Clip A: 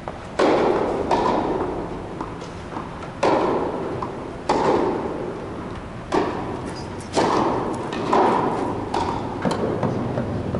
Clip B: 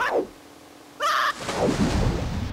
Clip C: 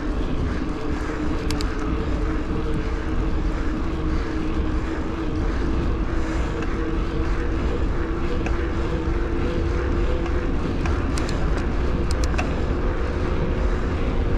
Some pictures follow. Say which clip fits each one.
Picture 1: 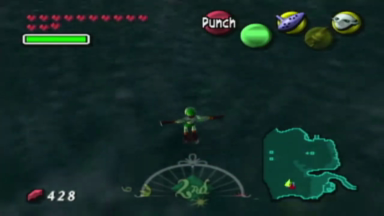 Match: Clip B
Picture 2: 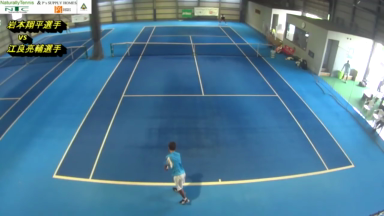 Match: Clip A